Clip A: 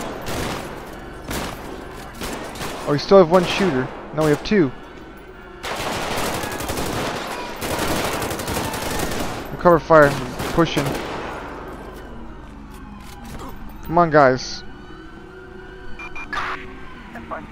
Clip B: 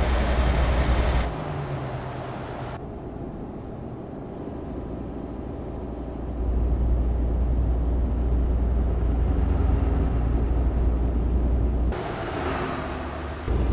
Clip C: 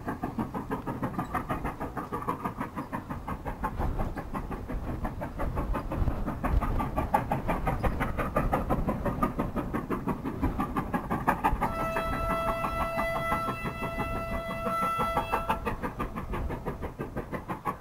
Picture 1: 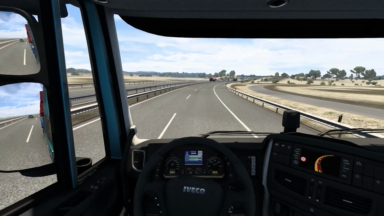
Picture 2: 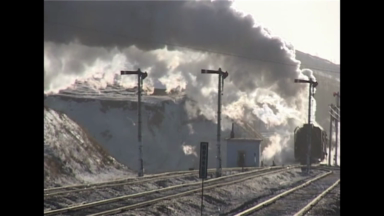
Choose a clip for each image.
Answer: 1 B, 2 C